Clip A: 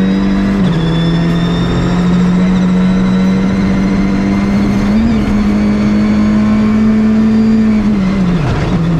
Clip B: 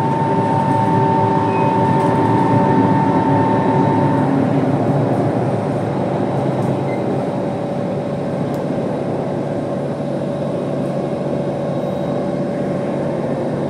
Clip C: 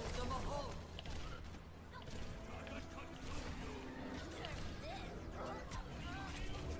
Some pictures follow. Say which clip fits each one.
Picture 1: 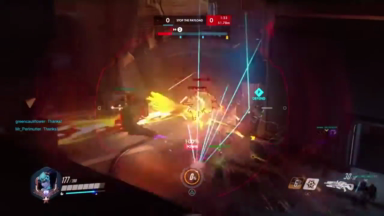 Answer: C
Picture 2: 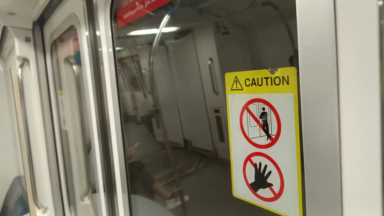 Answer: B